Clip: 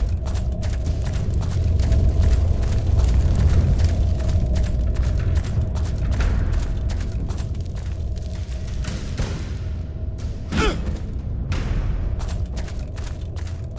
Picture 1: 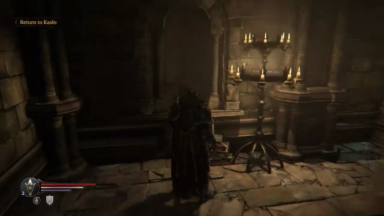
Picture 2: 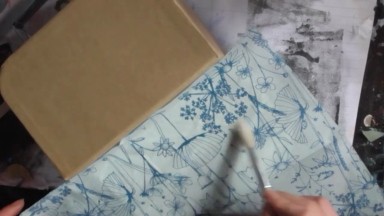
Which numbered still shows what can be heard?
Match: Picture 1